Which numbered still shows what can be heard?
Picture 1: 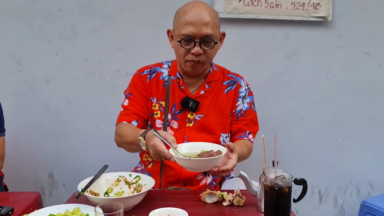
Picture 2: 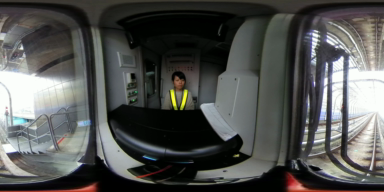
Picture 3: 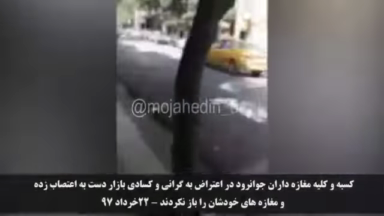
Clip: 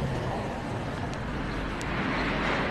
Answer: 3